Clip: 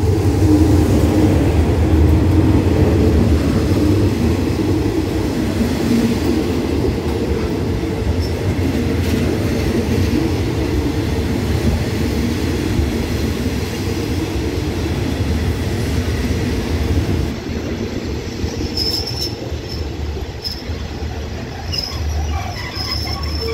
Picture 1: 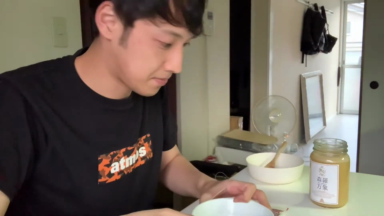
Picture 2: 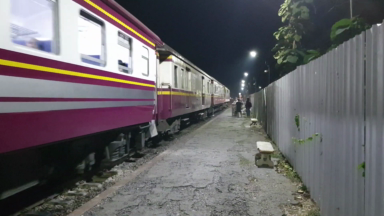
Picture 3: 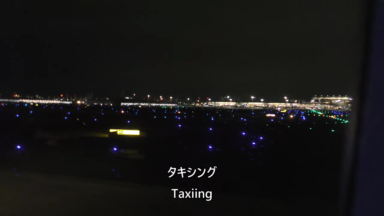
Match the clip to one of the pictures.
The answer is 2